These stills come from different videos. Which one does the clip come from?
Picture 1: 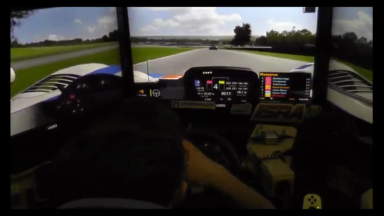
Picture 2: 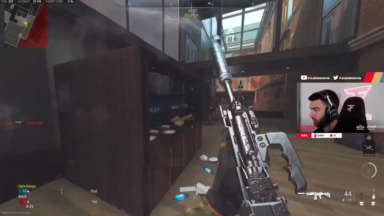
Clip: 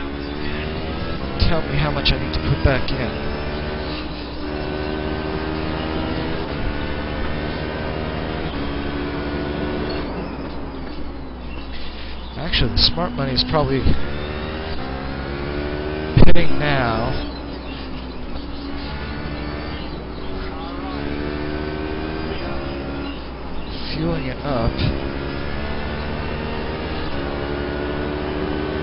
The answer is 1